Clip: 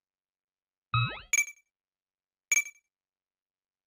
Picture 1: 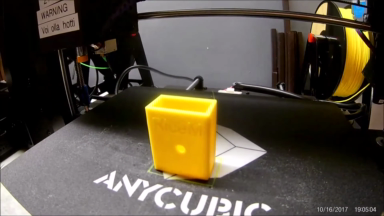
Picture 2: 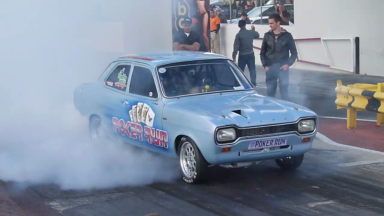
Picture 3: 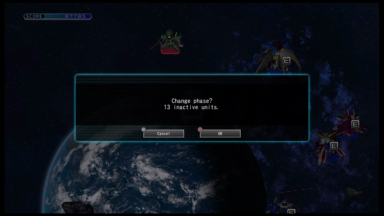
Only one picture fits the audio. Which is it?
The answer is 3